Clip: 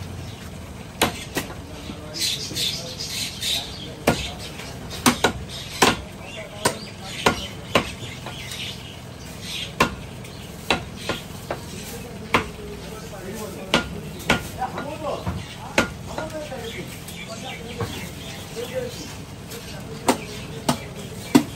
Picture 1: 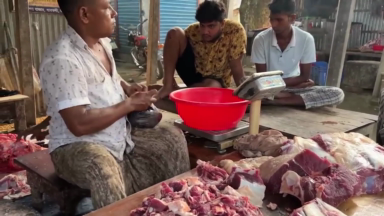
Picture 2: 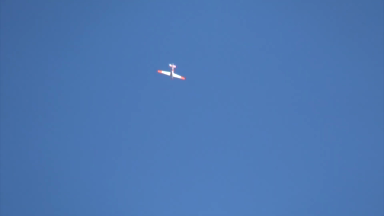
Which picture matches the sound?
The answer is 1